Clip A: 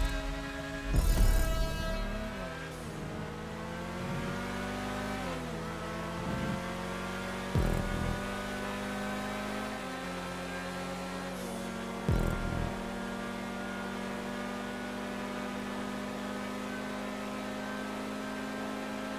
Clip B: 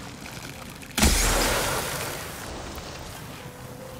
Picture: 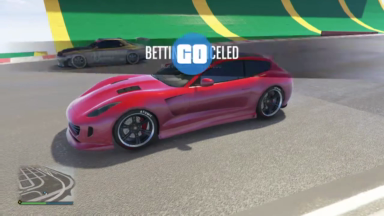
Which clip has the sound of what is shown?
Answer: A